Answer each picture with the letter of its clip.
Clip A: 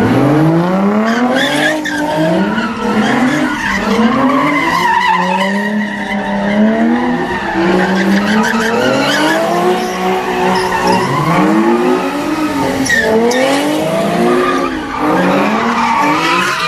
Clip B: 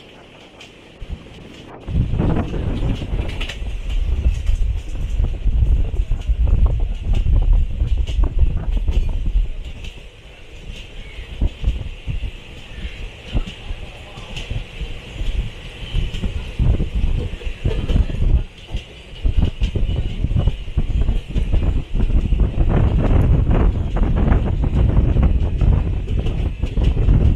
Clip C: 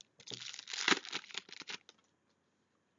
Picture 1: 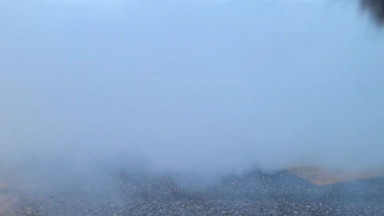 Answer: A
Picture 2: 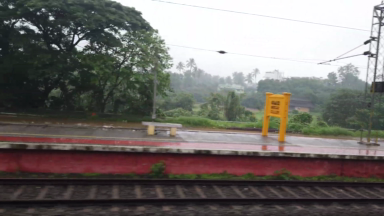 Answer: B